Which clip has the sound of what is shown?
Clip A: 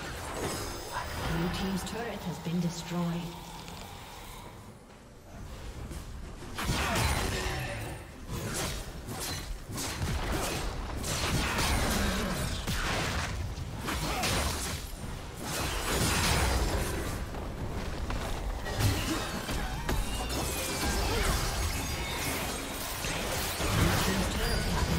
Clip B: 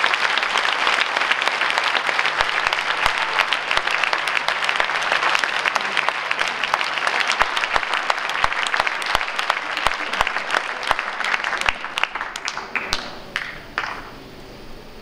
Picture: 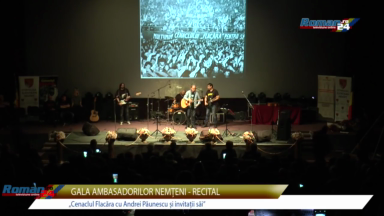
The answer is B